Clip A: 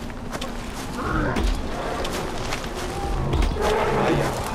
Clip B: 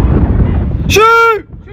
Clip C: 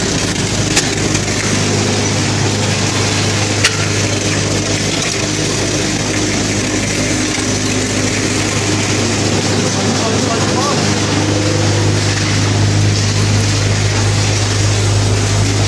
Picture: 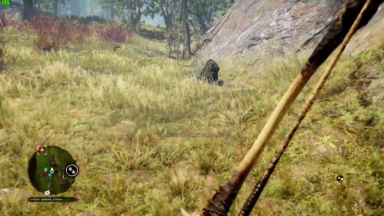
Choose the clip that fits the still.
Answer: A